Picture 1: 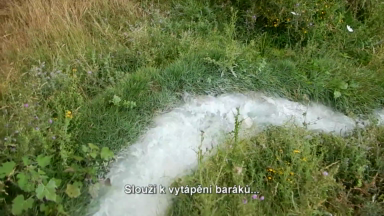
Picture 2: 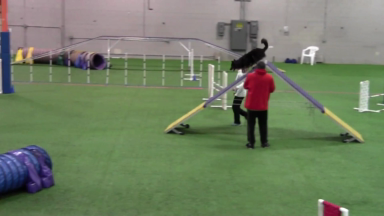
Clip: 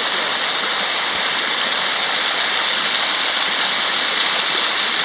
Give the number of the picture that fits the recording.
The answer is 1